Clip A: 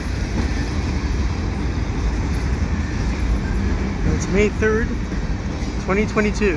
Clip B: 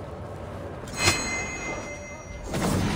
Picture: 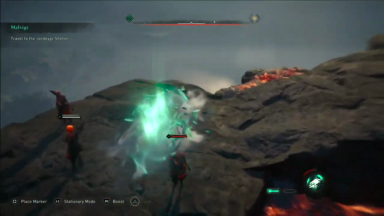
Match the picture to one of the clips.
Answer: B